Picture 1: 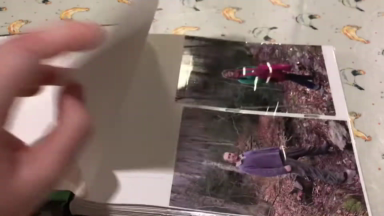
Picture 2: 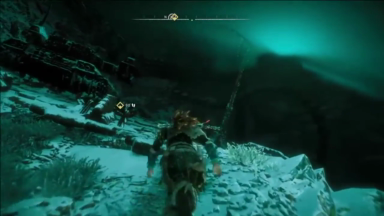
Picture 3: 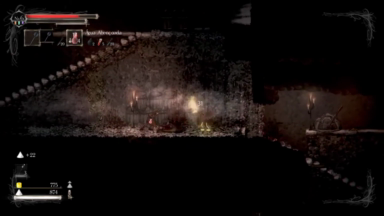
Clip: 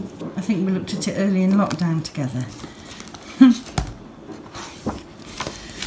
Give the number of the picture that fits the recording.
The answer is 1